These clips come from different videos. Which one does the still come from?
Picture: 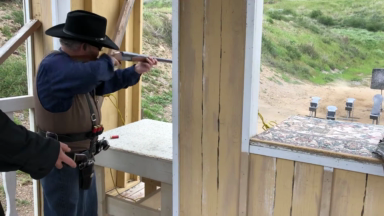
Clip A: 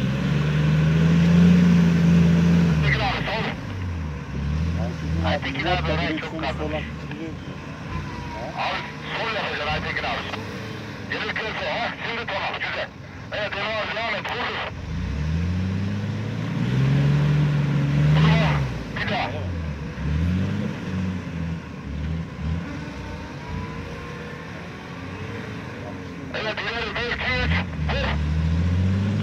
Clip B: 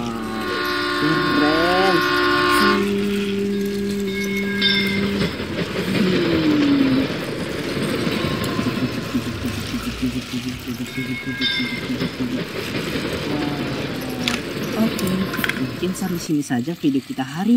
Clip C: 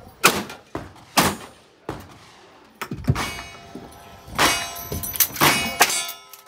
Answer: C